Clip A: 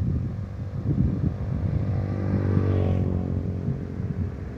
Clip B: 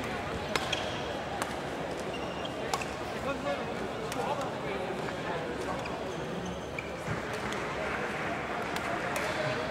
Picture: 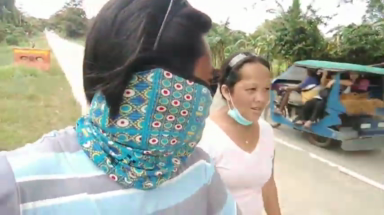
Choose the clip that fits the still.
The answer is A